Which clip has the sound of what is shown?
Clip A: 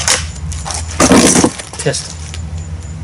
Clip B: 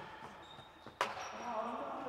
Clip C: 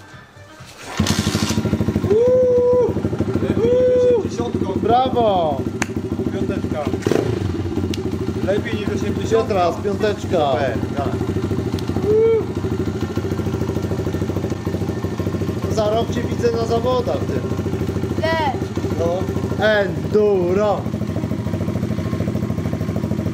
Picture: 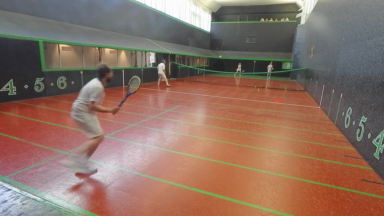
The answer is B